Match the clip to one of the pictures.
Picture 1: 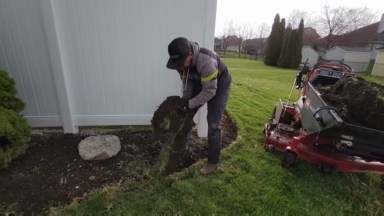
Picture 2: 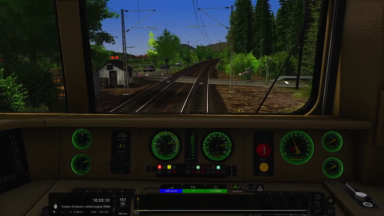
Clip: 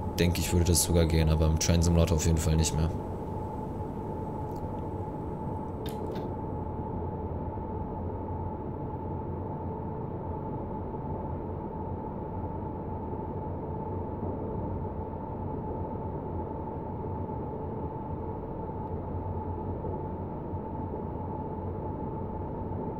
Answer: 2